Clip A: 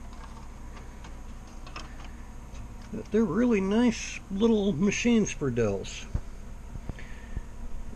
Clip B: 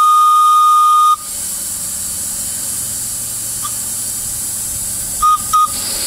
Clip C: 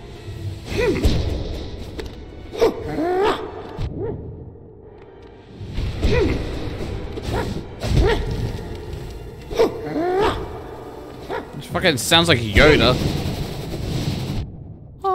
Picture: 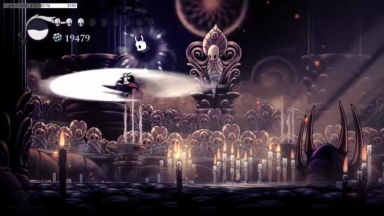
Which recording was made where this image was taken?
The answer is C